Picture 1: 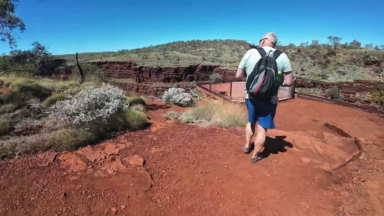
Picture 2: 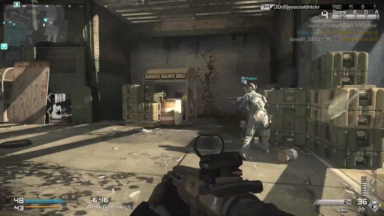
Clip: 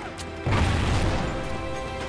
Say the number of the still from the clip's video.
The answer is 2